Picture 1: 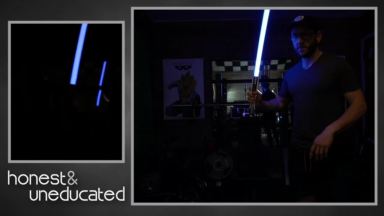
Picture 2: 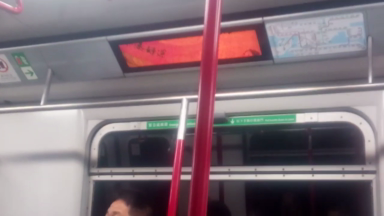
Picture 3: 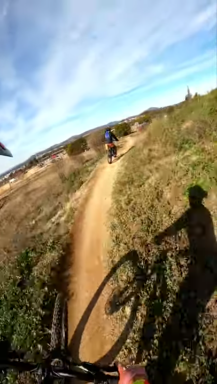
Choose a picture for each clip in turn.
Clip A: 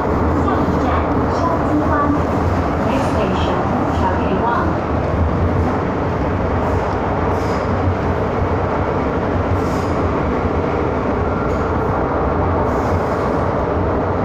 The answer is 2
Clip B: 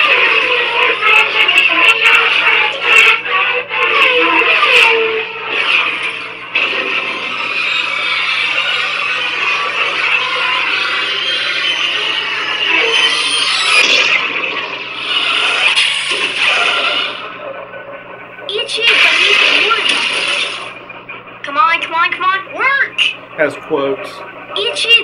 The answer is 1